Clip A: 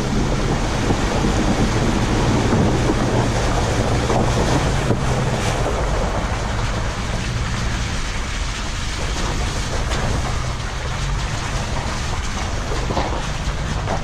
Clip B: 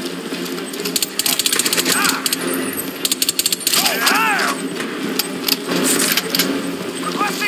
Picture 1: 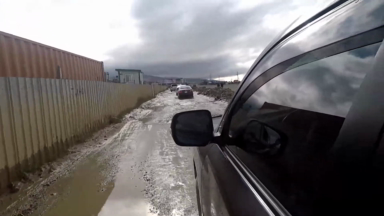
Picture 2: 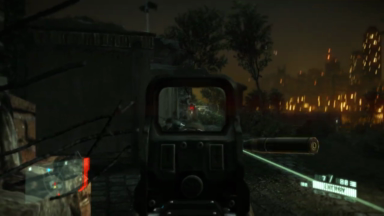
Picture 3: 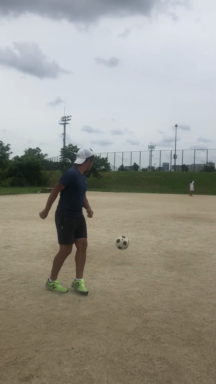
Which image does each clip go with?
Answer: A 1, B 2